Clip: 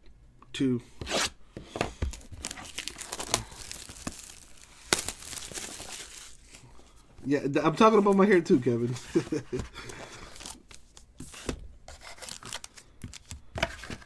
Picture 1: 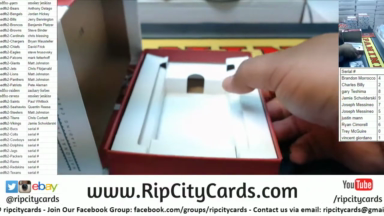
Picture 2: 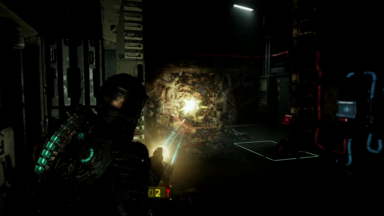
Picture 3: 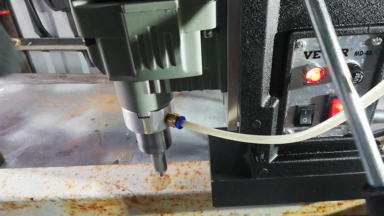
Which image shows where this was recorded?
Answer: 1